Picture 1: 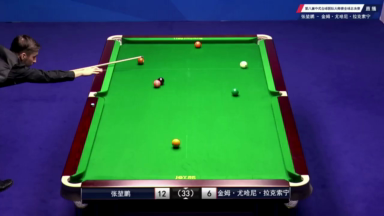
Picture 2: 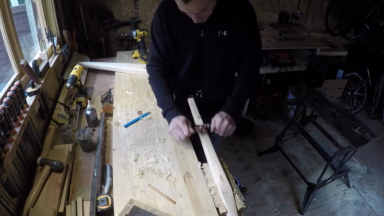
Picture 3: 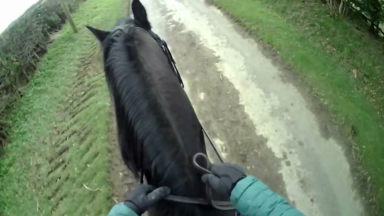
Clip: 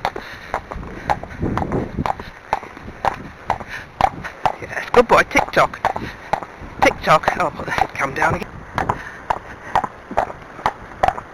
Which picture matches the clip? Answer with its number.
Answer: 3